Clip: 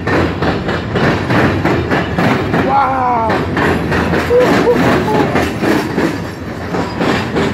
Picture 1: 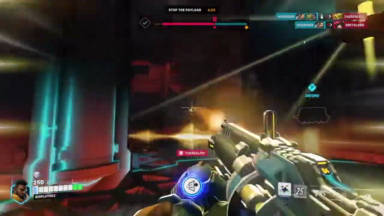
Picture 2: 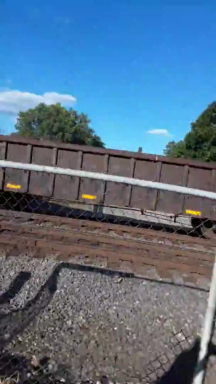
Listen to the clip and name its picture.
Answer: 2